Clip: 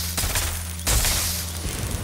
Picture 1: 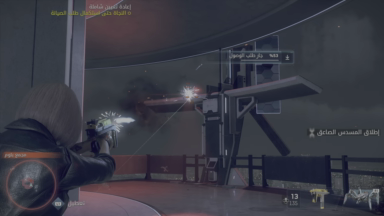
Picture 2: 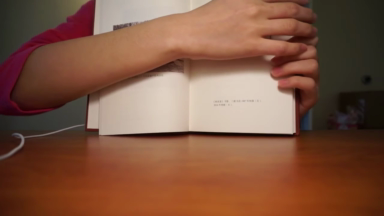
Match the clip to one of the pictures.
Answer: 1